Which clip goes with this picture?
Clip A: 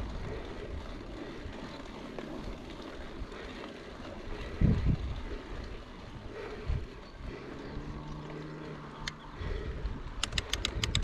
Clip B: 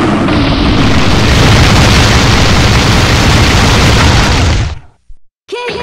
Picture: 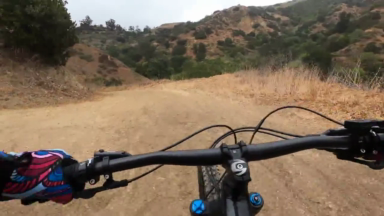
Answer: A